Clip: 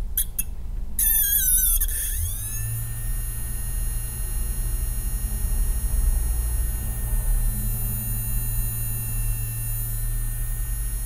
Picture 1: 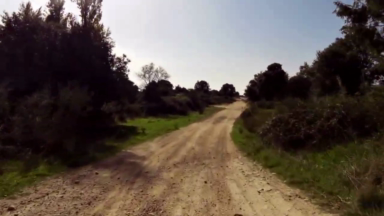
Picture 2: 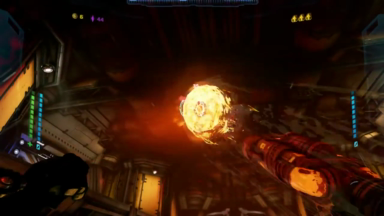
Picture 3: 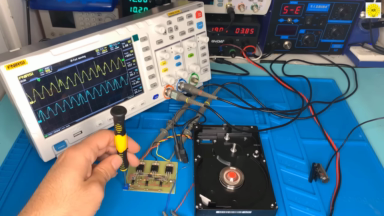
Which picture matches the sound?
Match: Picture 3